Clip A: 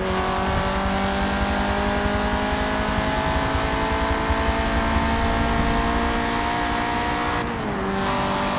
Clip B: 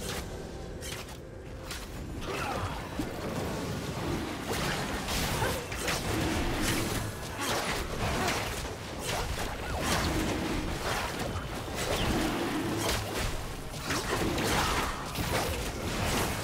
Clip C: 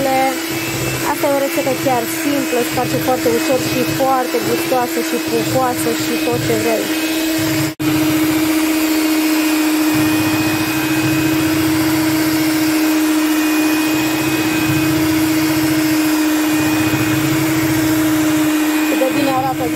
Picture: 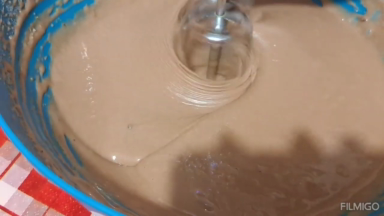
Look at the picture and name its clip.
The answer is C